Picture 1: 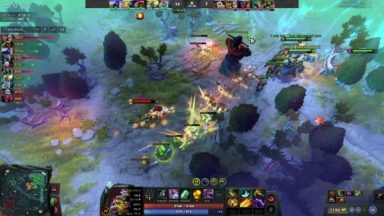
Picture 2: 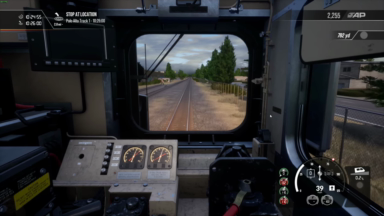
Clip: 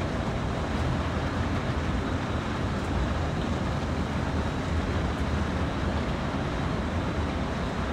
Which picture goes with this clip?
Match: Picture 2